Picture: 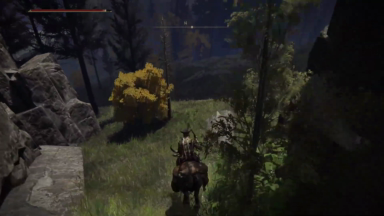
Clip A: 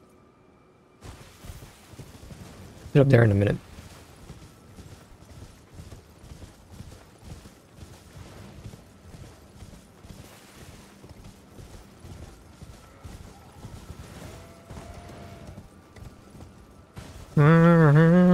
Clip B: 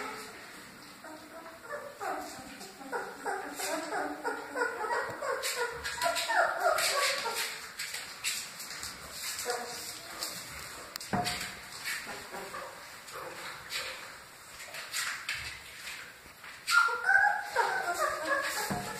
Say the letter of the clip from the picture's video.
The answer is A